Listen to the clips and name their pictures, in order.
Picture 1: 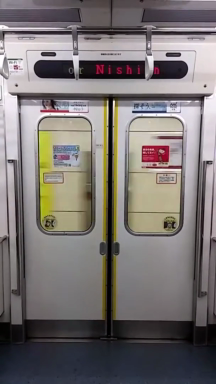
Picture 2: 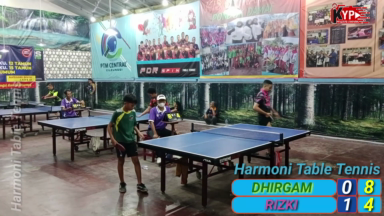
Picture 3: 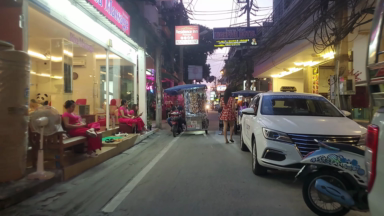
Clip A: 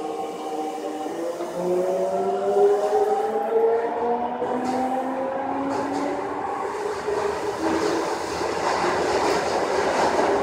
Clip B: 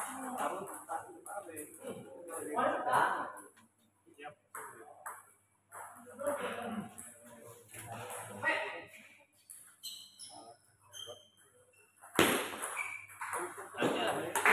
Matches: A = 1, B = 2